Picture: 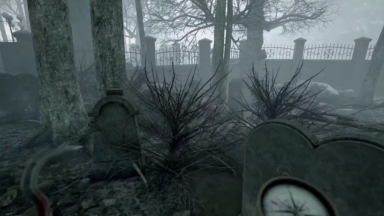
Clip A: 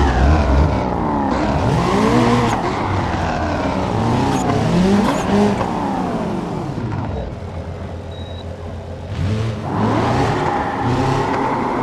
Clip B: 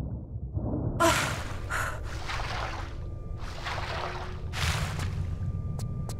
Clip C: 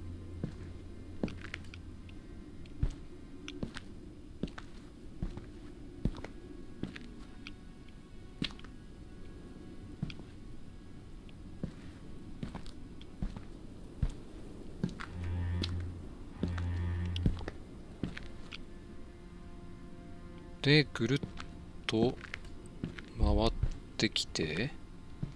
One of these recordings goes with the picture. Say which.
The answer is C